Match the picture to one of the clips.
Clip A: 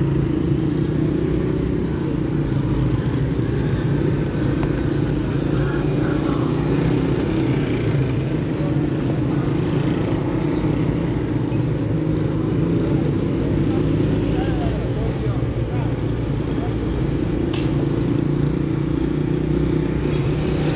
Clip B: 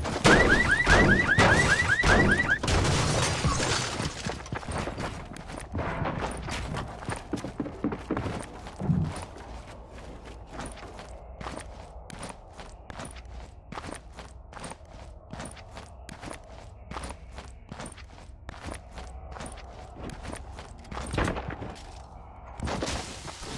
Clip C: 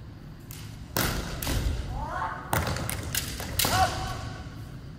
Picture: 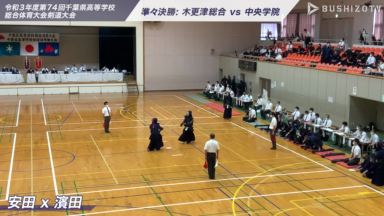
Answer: C